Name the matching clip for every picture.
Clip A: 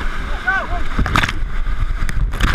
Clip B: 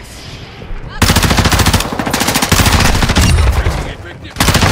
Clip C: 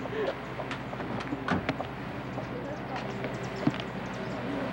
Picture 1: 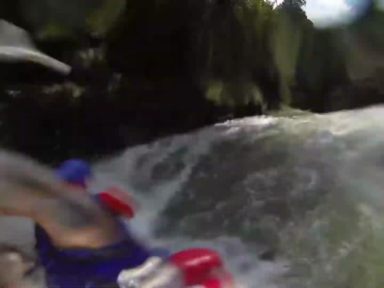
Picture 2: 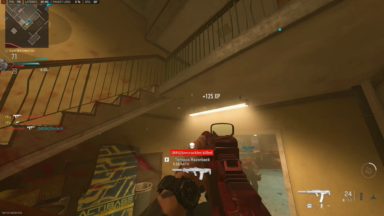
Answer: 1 A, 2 B